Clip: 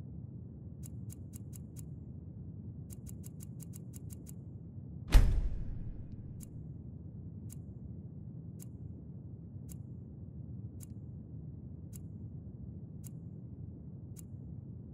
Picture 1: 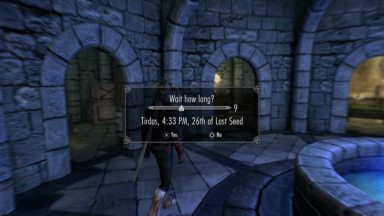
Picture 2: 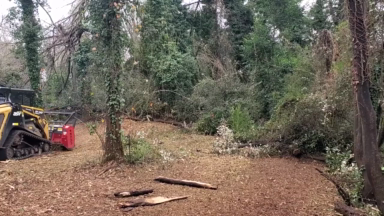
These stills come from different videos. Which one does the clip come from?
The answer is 1